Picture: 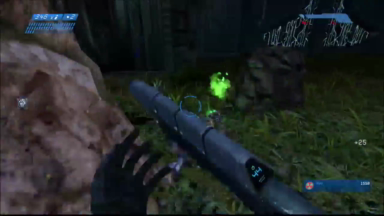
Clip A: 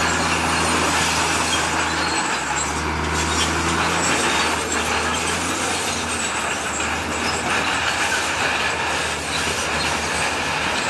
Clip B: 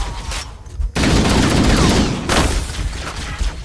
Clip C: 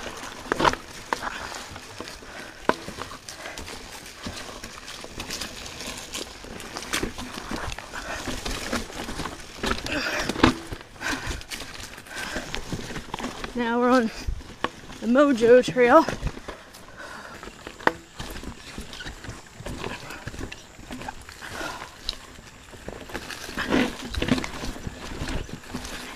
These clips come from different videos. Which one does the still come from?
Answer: B